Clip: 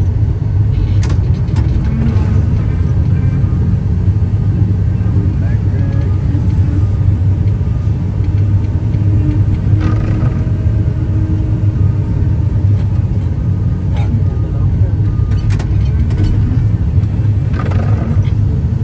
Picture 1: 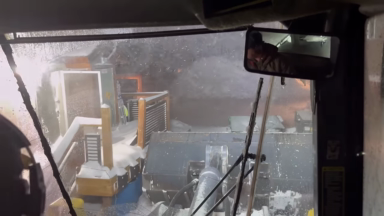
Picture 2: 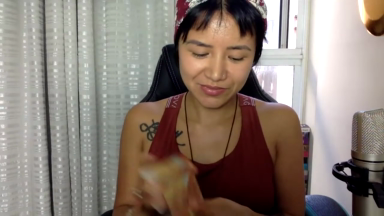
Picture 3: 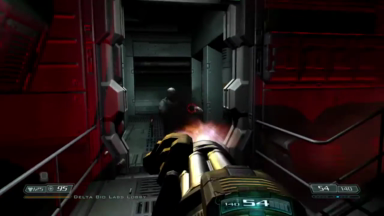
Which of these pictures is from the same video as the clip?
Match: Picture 1